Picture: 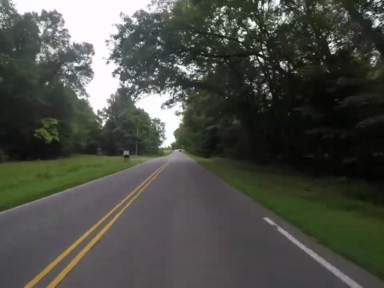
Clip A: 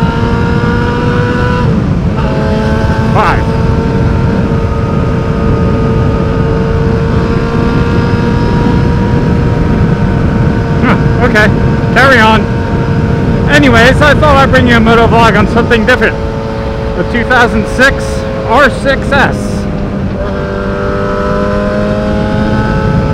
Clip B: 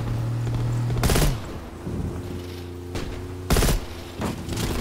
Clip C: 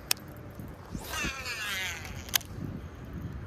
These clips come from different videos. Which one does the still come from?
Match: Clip A